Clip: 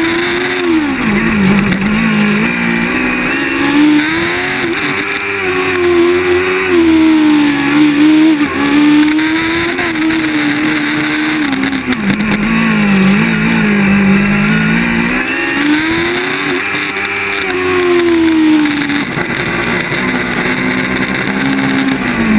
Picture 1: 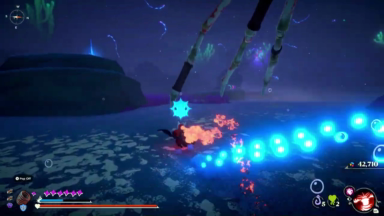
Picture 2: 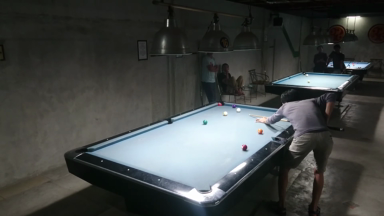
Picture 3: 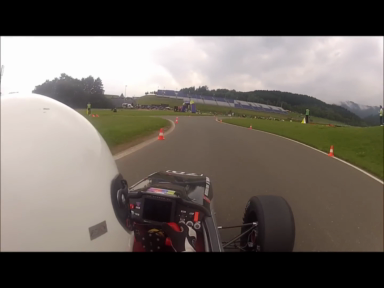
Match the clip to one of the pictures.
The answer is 3